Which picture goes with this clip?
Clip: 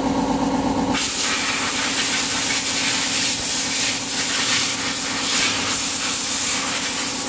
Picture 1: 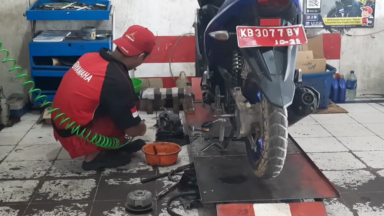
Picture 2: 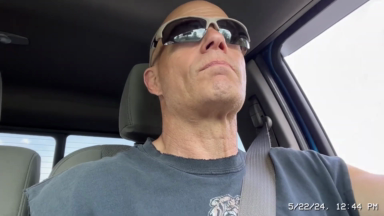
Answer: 1